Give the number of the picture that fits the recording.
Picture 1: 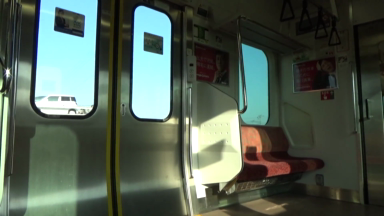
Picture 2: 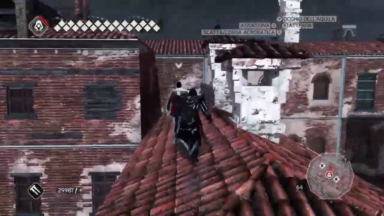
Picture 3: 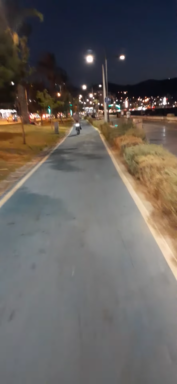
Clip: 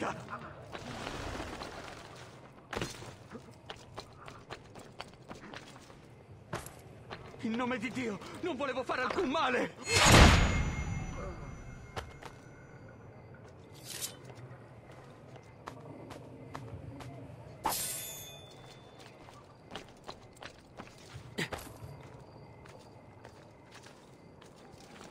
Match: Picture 2